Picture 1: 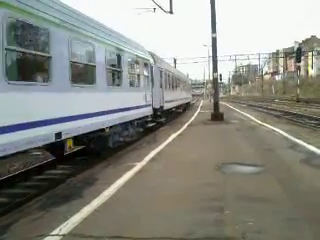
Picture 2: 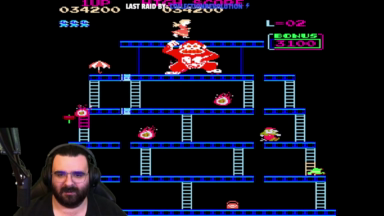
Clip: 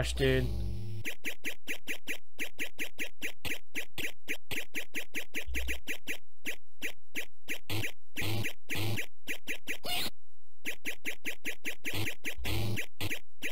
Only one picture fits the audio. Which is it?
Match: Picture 2